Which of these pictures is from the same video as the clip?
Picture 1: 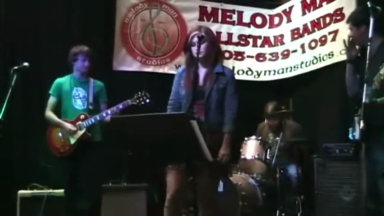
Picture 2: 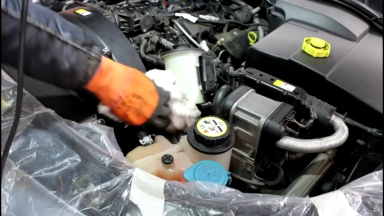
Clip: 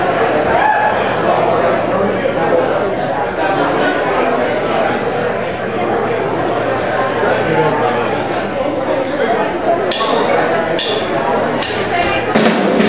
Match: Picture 1